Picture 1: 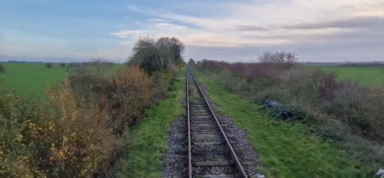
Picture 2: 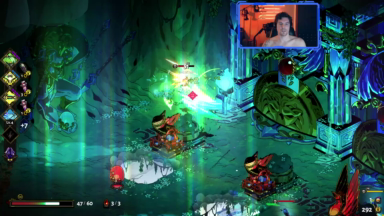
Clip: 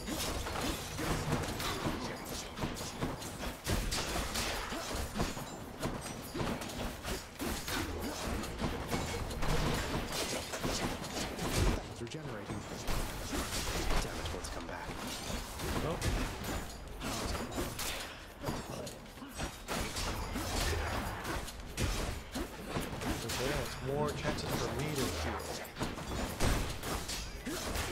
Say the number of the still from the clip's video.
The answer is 2